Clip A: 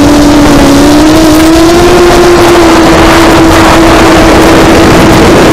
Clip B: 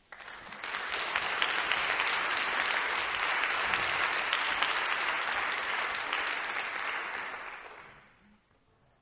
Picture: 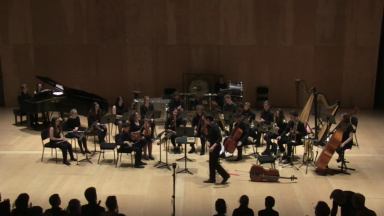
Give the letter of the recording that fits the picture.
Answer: B